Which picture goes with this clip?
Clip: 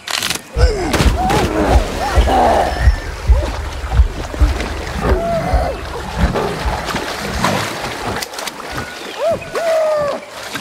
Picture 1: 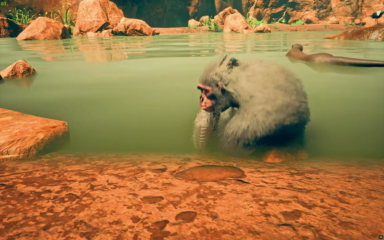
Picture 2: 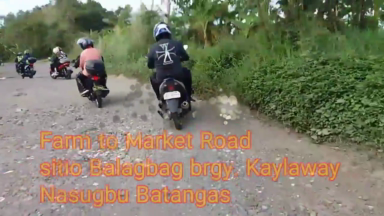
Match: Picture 1